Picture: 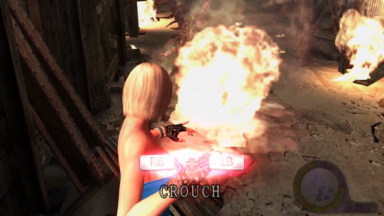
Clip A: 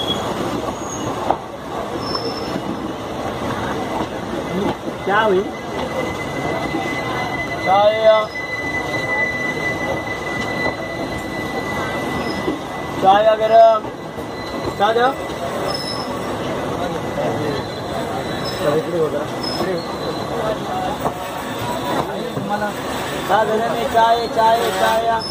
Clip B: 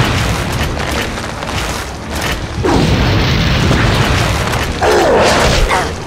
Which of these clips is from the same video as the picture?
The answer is B